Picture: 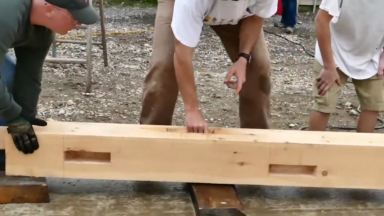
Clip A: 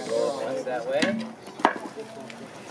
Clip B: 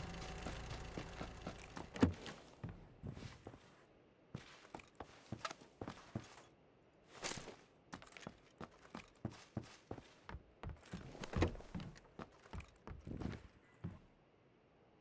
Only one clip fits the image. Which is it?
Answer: A